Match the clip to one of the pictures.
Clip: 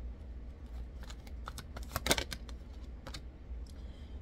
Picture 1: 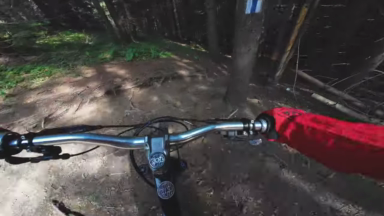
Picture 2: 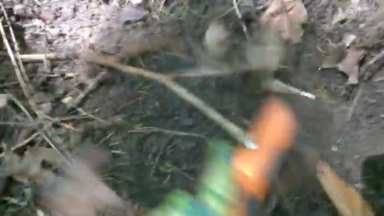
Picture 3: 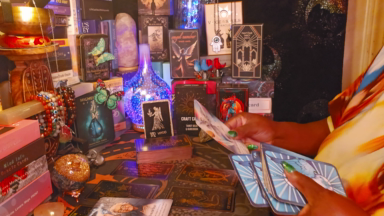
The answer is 3